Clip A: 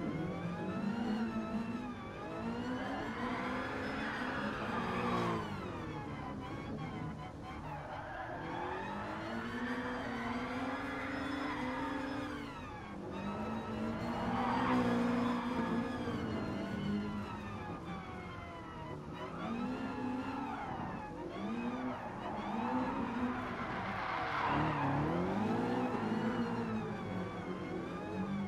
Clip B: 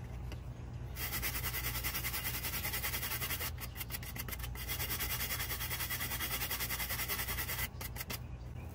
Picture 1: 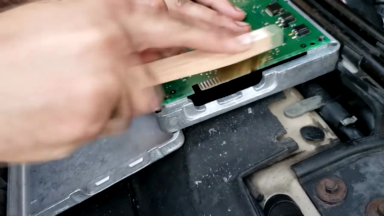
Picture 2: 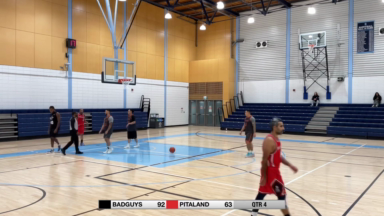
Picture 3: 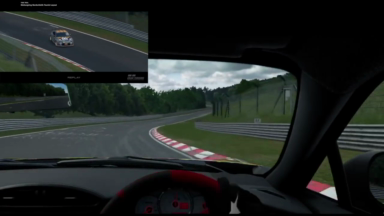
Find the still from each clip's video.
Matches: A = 3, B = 1